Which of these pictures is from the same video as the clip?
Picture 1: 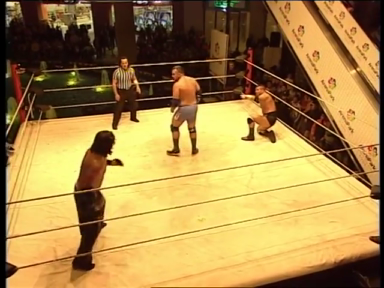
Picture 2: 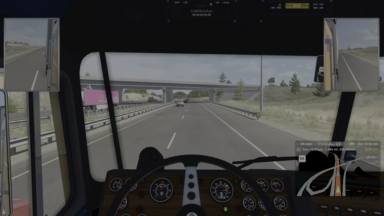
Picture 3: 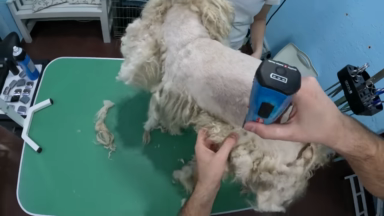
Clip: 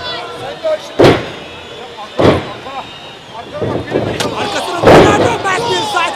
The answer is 1